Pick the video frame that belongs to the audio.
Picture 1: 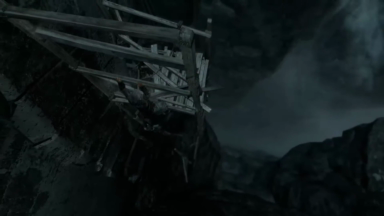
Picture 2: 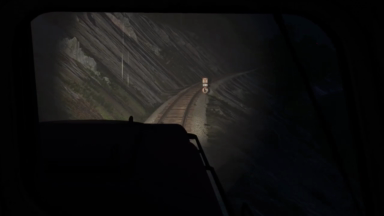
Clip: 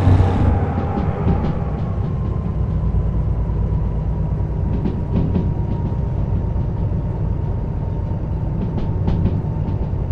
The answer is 2